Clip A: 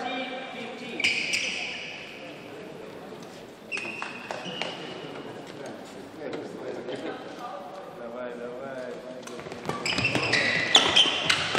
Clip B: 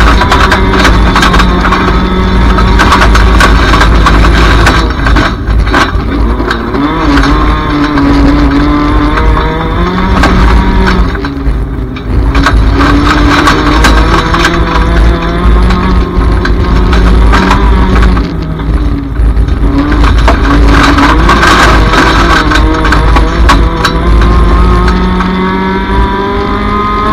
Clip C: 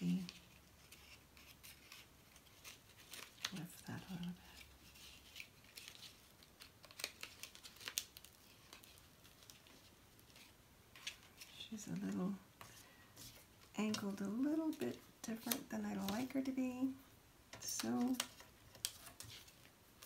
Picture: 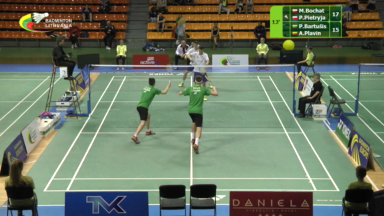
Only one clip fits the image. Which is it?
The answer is A